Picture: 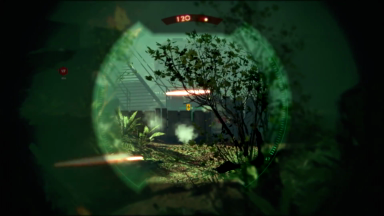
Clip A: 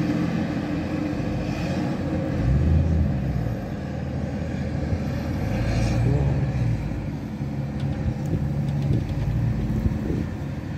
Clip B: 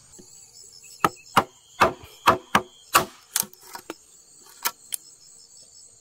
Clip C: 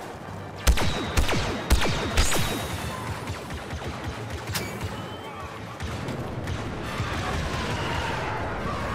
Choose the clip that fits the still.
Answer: C